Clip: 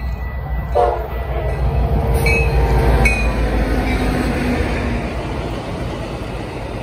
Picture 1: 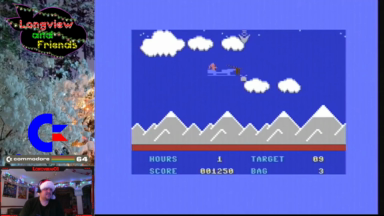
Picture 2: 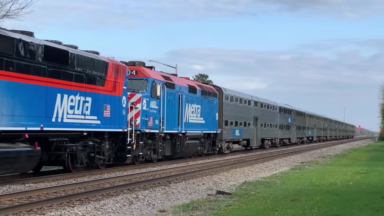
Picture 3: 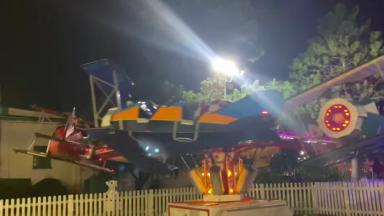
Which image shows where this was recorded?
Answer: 2